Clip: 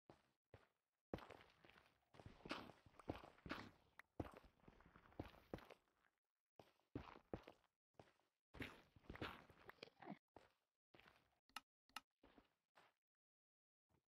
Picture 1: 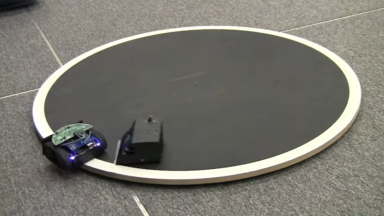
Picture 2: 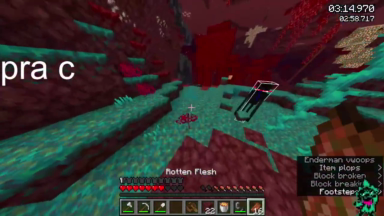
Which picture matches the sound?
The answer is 2